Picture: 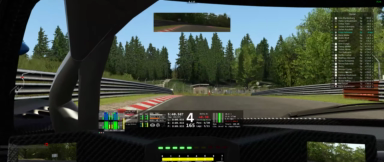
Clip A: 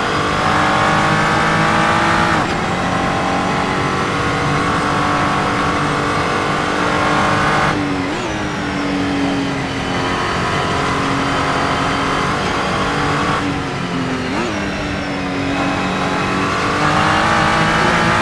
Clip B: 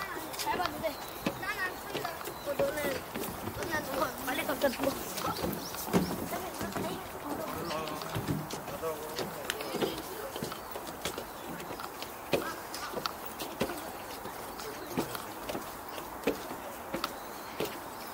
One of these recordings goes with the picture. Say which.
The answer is A